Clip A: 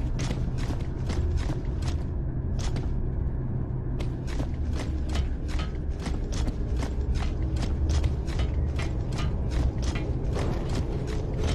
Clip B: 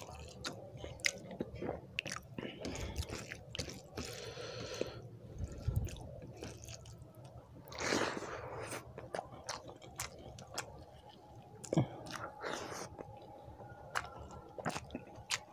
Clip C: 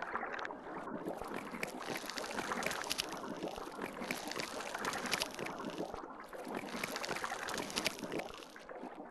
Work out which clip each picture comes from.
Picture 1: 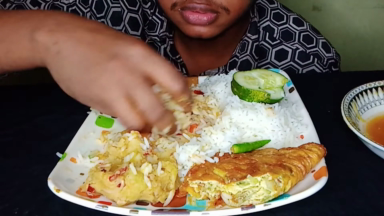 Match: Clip B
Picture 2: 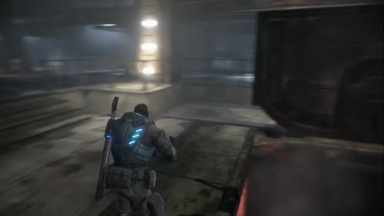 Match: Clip A